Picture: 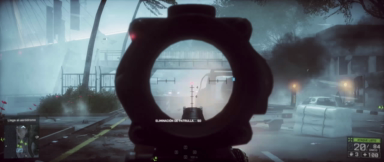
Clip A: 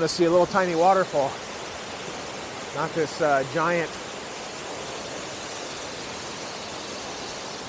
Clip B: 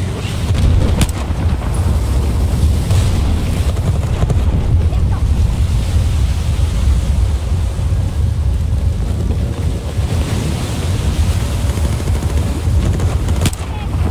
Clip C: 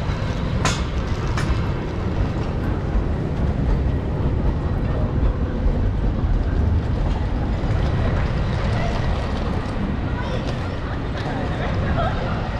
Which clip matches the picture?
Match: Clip B